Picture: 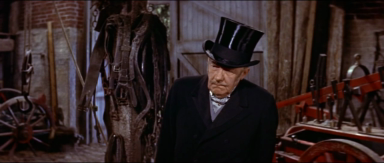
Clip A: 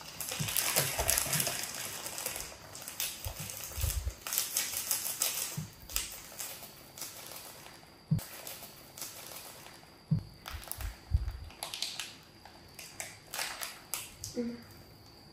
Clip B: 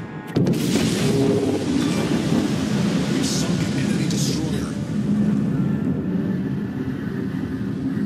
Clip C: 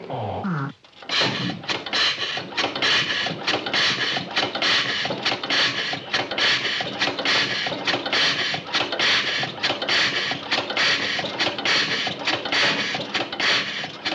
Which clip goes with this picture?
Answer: C